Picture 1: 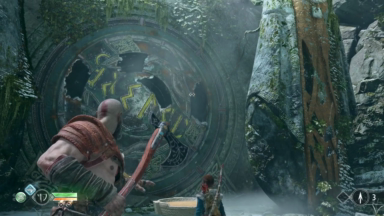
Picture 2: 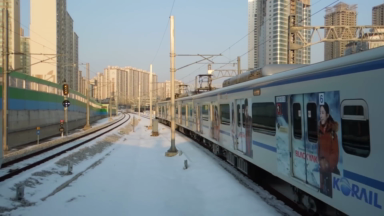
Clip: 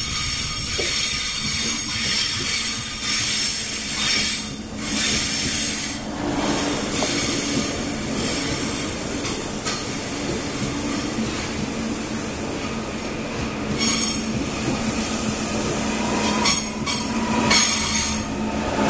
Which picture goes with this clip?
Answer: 2